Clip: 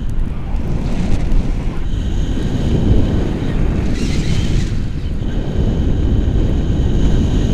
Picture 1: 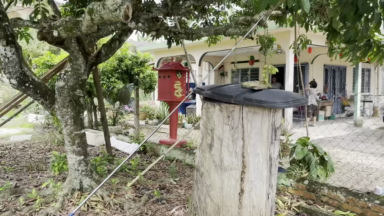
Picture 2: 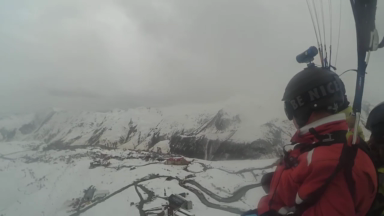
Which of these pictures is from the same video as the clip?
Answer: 2